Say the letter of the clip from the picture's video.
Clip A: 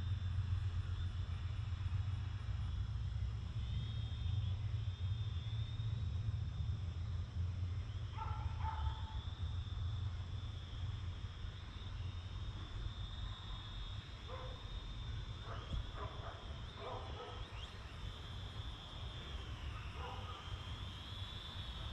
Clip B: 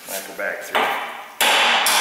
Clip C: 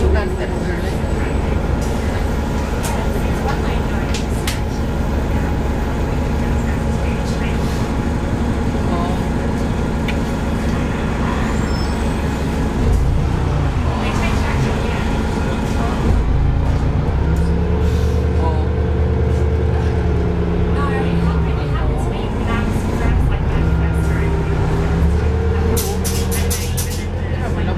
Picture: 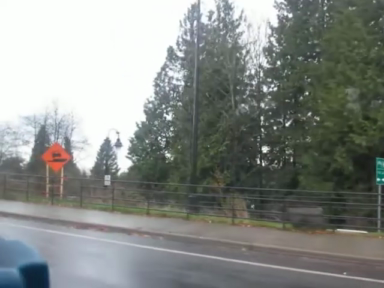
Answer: C